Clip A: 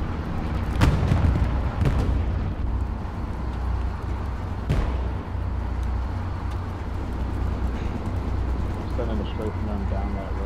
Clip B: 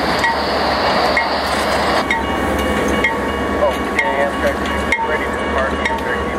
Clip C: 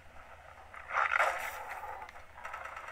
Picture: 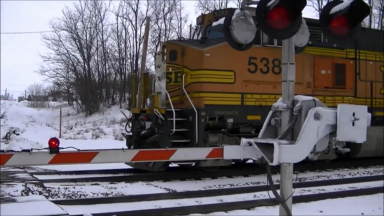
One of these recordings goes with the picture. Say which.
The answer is B